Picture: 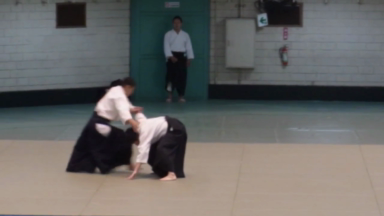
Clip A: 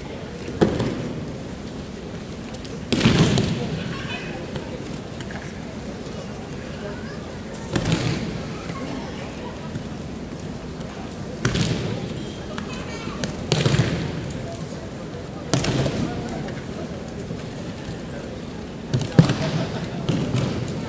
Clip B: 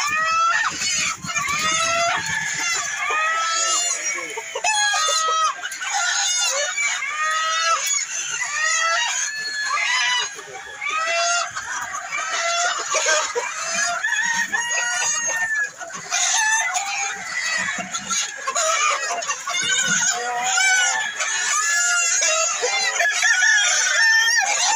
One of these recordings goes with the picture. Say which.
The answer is A